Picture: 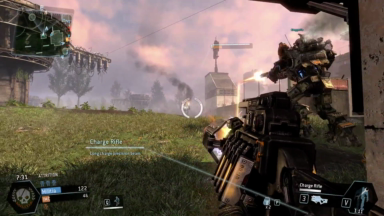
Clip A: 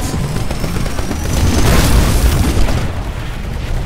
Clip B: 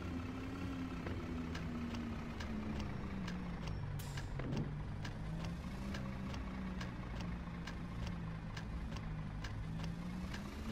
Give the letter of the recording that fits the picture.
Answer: A